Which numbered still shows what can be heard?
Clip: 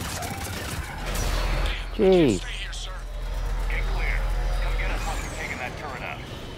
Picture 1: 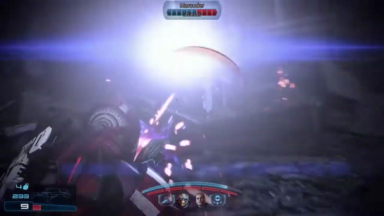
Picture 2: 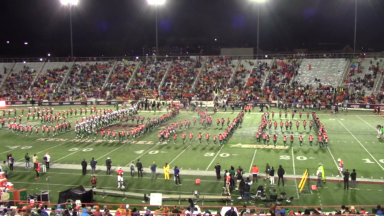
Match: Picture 1